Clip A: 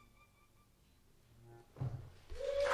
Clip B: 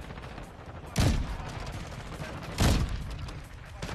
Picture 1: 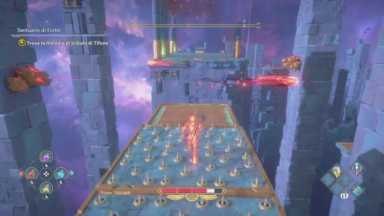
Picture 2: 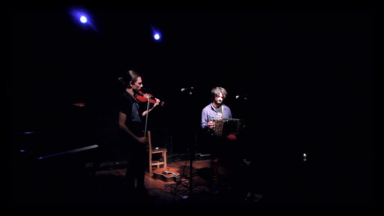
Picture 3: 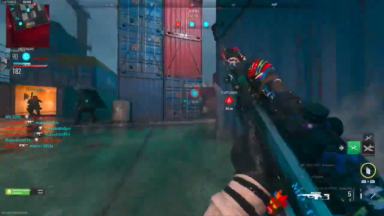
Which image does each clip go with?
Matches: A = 2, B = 3